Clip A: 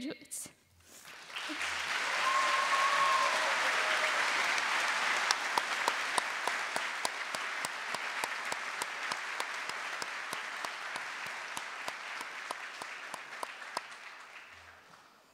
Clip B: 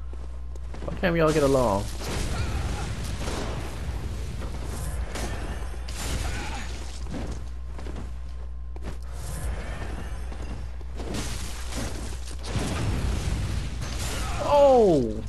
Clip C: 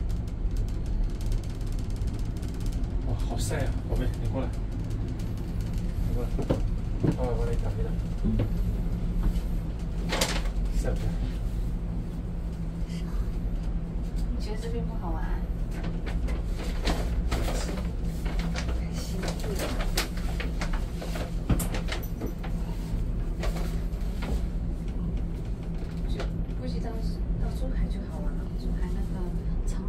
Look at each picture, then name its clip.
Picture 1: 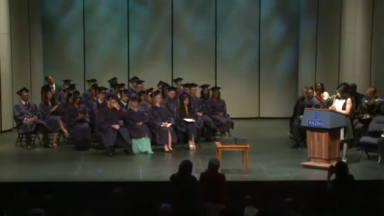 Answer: A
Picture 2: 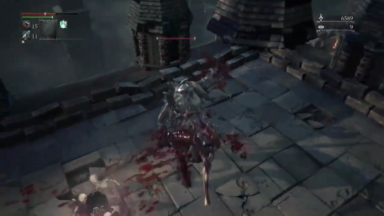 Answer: B